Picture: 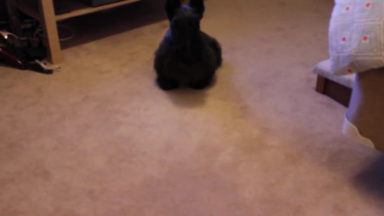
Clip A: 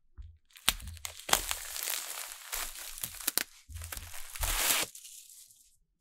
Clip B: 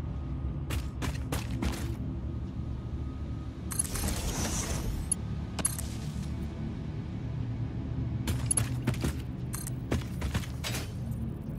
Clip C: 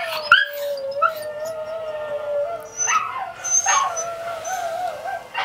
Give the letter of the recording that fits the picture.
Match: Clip C